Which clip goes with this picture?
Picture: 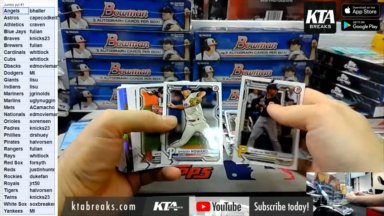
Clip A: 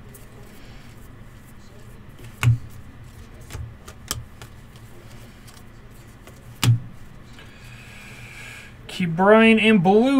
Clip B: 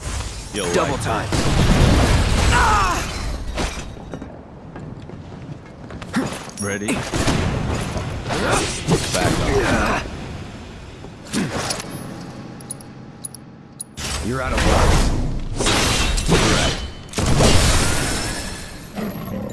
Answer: A